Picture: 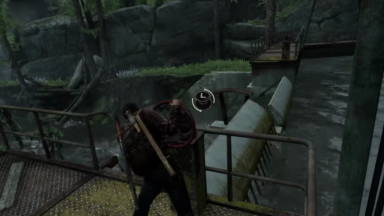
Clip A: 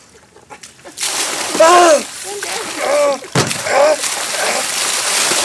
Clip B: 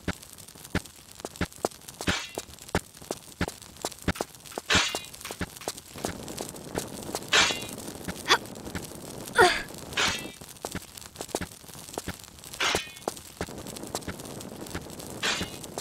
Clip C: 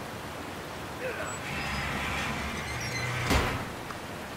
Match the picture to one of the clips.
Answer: C